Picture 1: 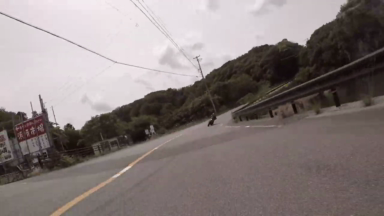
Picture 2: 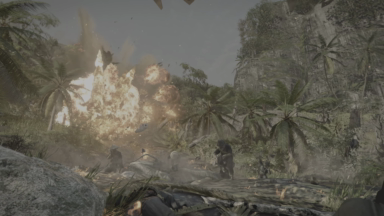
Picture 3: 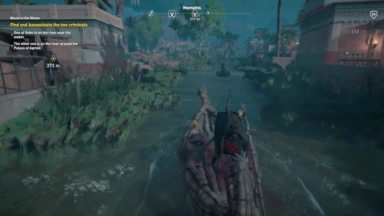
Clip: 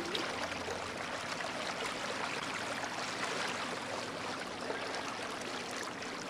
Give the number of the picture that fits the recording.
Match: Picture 3